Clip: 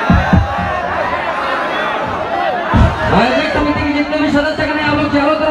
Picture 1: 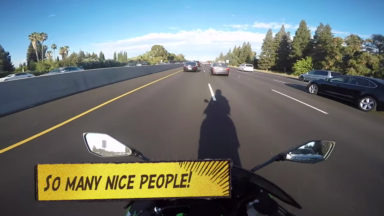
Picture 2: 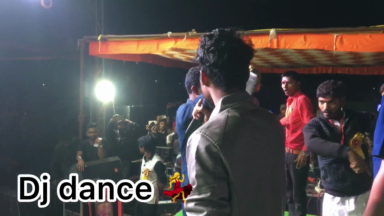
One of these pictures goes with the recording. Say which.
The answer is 2